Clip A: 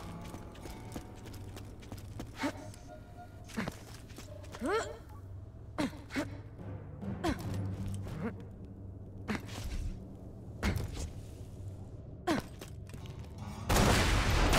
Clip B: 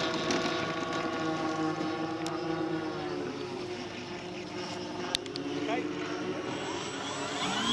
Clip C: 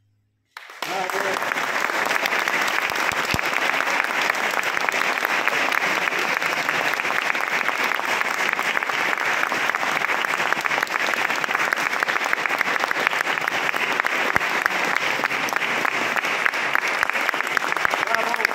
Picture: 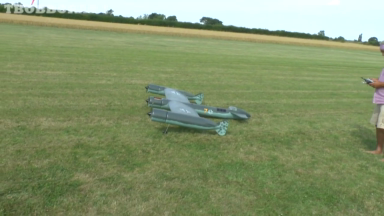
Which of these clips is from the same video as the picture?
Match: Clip B